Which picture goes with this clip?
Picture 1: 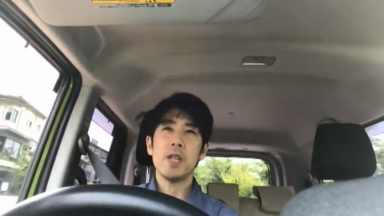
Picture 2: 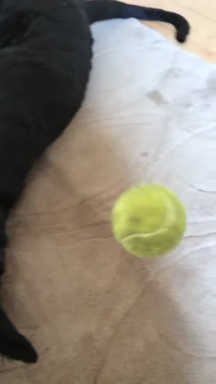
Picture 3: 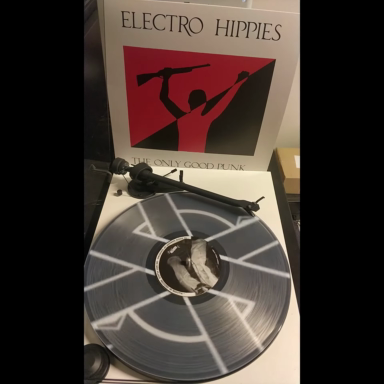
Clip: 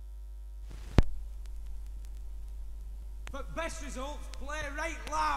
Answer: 3